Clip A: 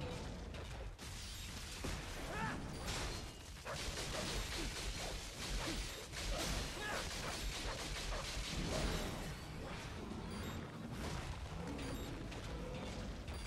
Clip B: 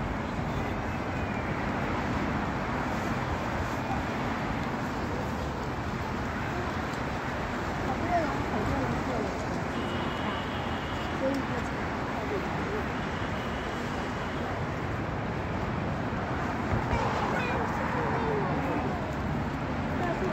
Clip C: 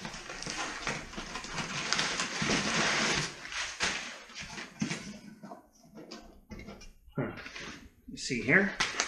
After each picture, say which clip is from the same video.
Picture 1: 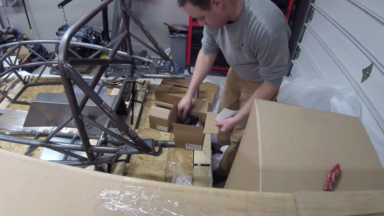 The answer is C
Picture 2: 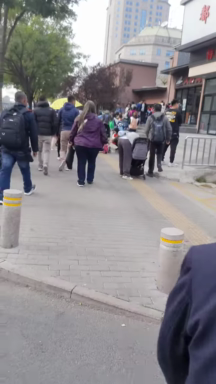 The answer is B